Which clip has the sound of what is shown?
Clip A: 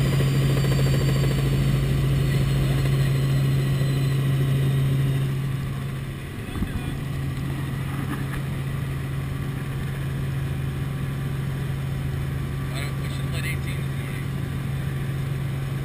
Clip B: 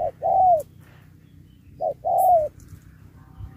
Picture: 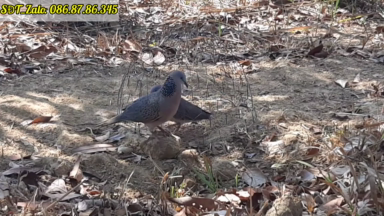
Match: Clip B